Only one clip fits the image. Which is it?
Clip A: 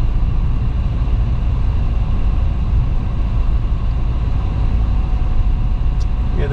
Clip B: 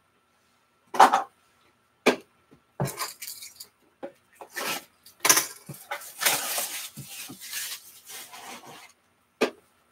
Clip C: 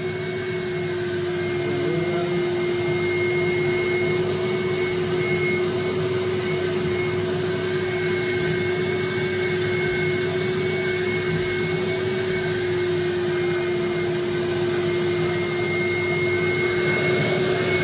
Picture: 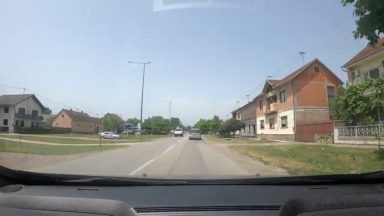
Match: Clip A